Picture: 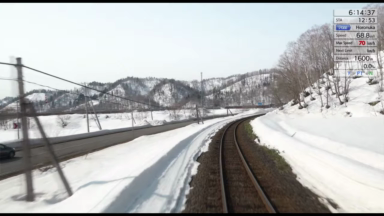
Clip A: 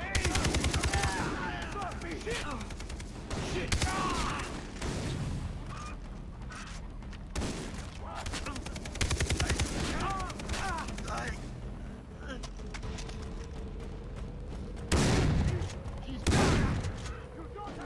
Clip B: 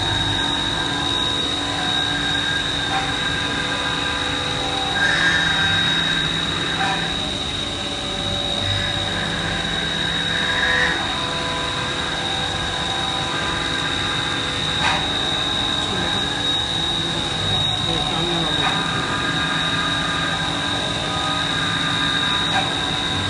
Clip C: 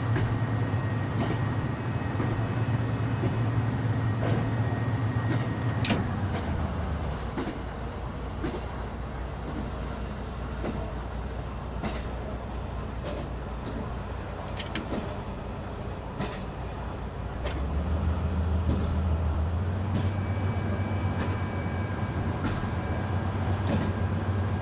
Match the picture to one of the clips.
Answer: C